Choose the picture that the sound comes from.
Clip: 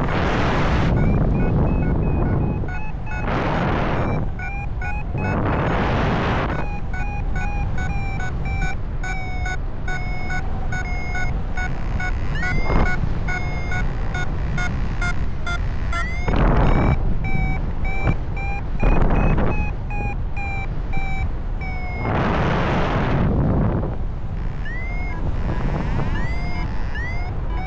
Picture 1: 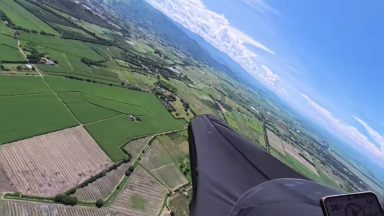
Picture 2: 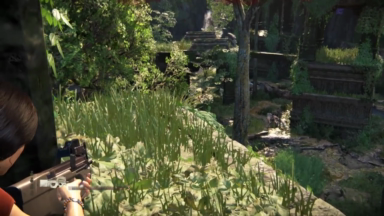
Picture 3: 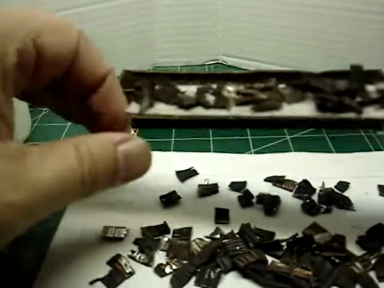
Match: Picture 1